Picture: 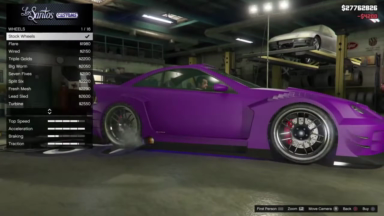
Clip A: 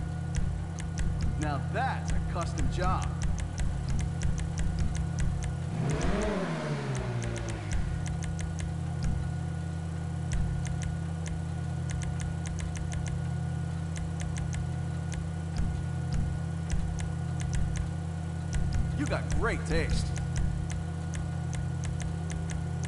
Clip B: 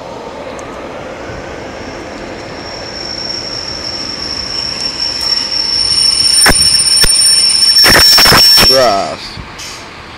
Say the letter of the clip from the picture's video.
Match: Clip A